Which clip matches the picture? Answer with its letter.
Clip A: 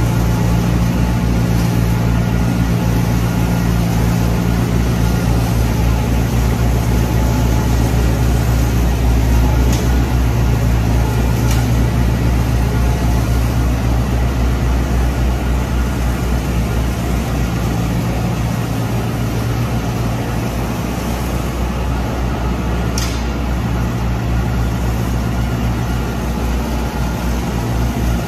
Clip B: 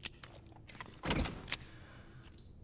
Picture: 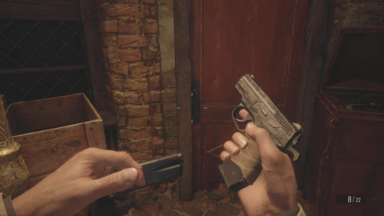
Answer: B